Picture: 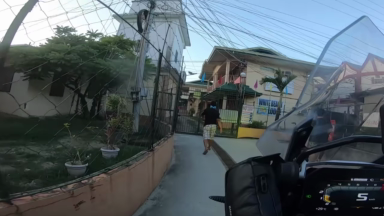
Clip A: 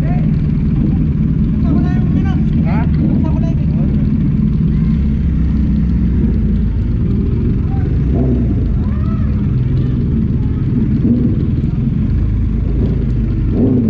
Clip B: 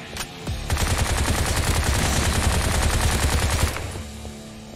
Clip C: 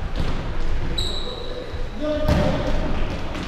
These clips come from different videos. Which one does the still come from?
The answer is A